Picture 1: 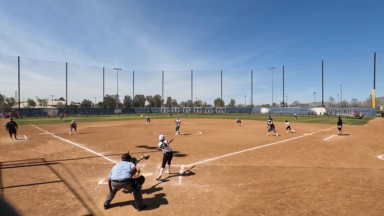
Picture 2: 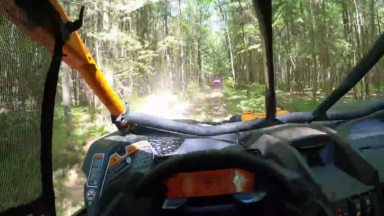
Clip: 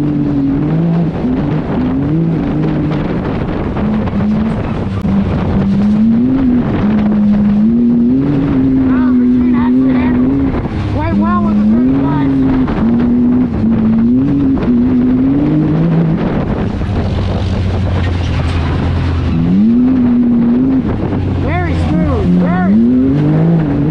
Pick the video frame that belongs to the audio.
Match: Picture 2